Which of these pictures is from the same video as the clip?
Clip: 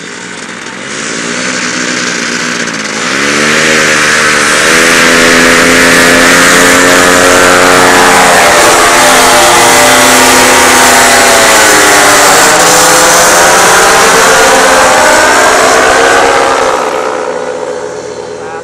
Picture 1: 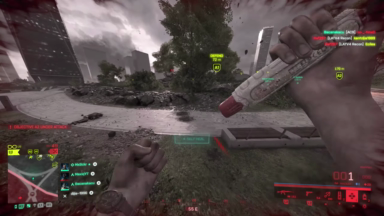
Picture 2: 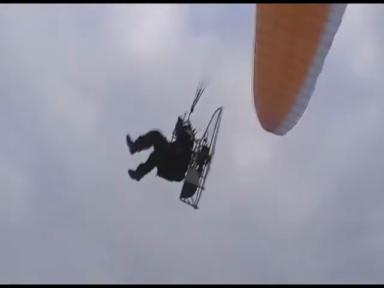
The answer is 2